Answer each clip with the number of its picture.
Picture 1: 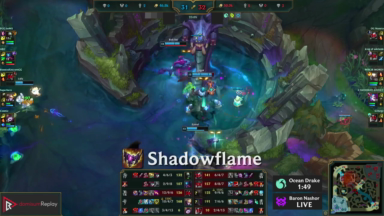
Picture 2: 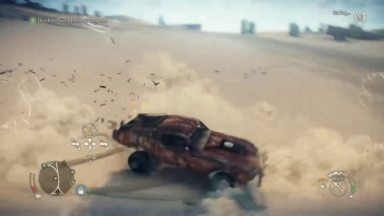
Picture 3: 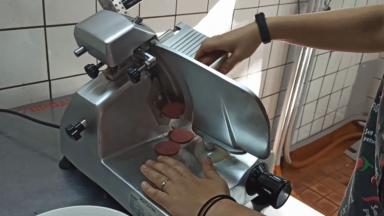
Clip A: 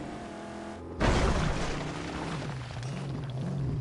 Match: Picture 2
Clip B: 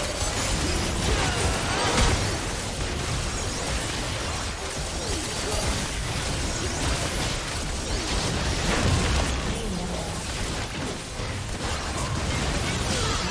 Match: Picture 1